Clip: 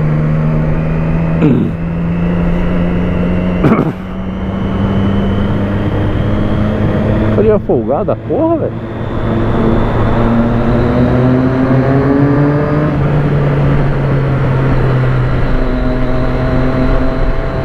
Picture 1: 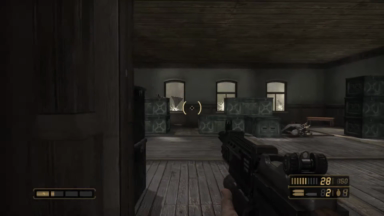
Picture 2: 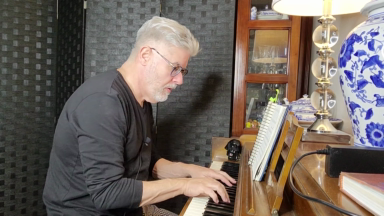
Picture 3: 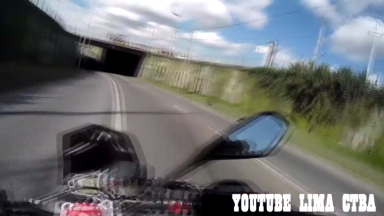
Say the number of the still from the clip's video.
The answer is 3